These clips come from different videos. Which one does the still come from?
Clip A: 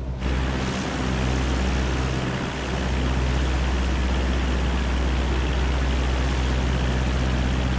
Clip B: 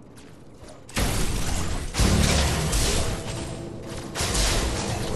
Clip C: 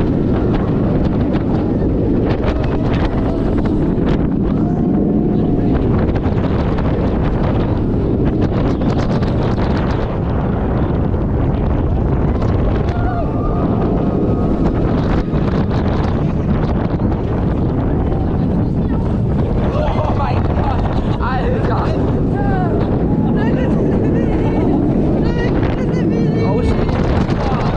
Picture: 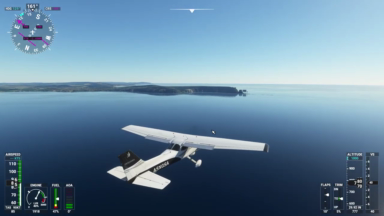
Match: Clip A